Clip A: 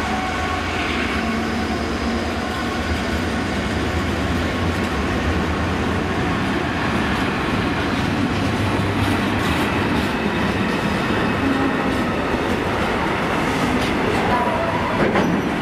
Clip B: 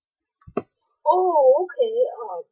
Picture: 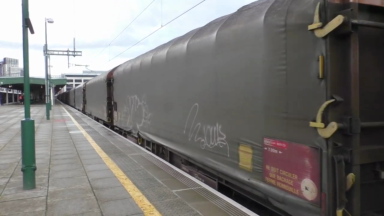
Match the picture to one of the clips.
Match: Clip A